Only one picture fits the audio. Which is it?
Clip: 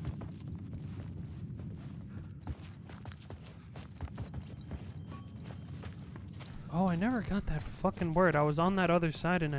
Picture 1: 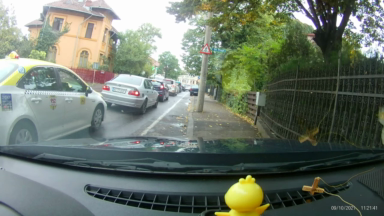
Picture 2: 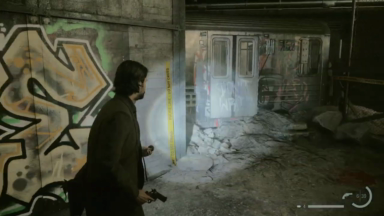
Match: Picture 2